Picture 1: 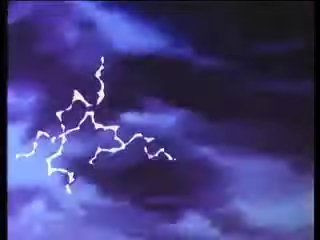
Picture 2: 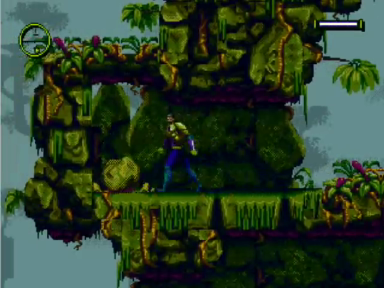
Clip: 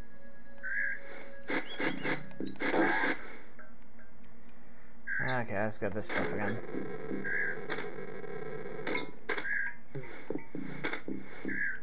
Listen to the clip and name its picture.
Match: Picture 2